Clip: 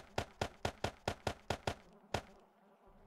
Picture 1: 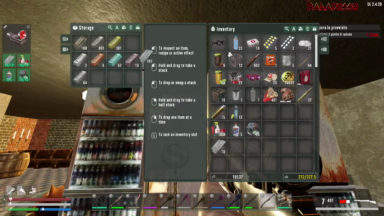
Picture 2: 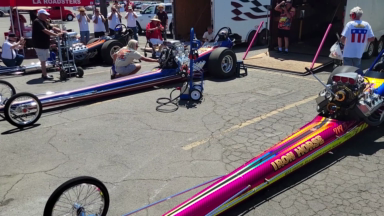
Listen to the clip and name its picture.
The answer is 1